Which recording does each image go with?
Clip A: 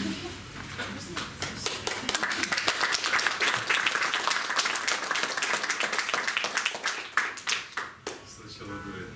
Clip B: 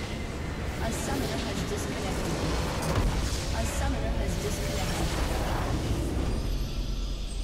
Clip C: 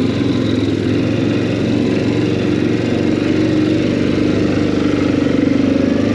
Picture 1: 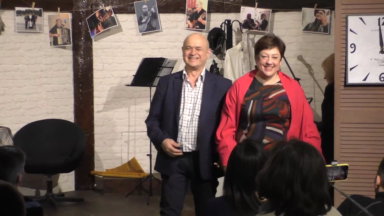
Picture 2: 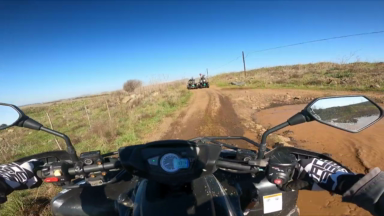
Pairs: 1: A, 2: C